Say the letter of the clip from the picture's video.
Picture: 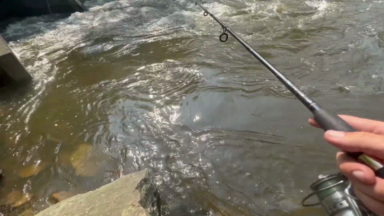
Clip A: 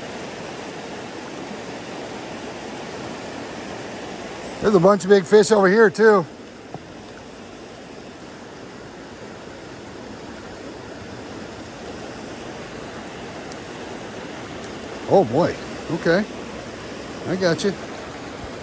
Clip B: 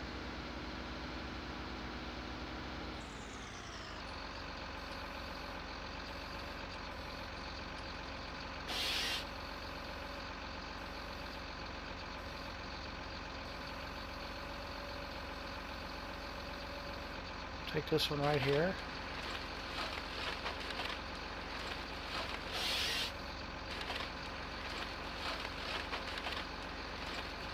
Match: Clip A